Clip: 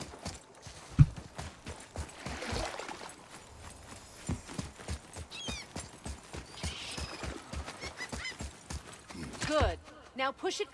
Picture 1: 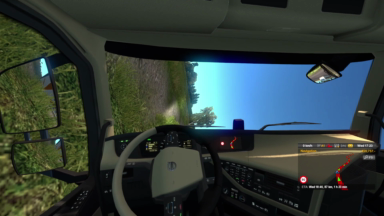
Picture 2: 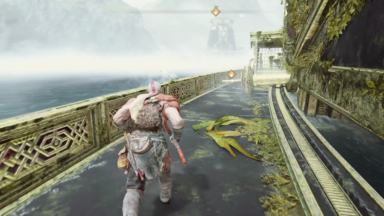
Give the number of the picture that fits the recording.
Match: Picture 2